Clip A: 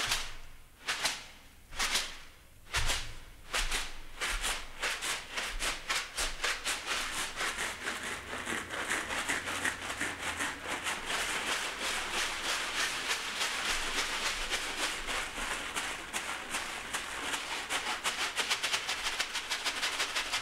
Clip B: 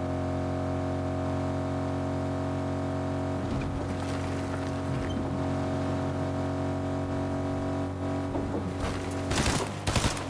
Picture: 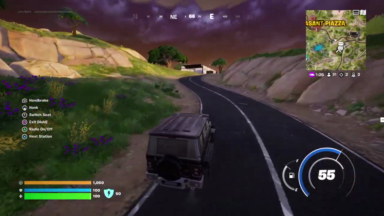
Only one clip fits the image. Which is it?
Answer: B